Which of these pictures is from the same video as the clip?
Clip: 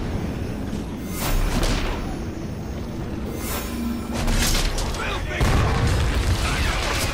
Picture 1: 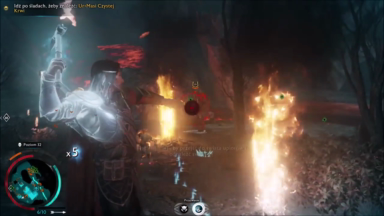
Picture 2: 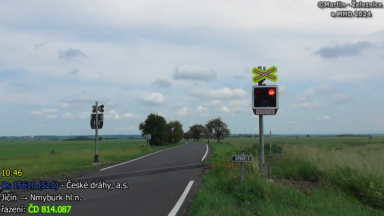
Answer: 1